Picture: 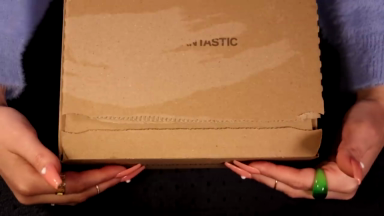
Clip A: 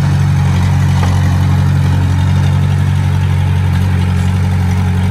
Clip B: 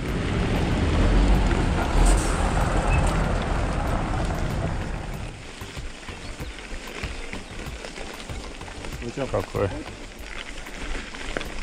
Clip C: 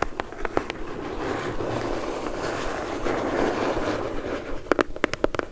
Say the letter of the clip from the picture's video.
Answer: C